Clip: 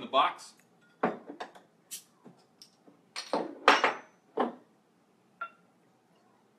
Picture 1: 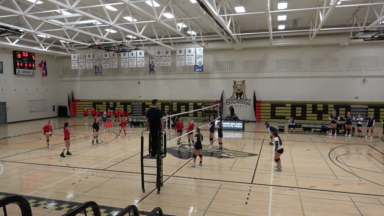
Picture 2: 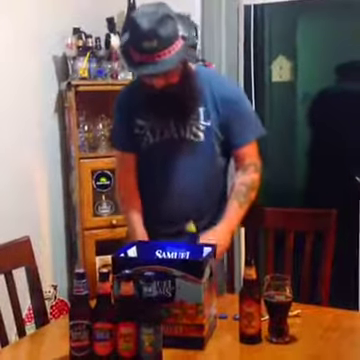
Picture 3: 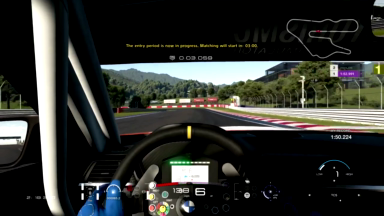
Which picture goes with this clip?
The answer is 2